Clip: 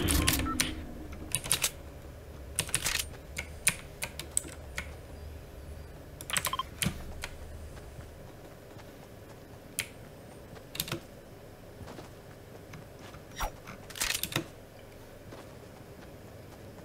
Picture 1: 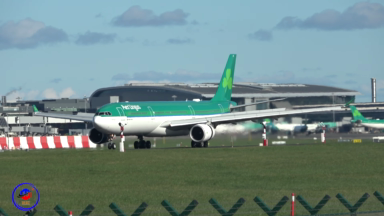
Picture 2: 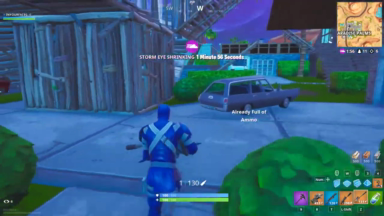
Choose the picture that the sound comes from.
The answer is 2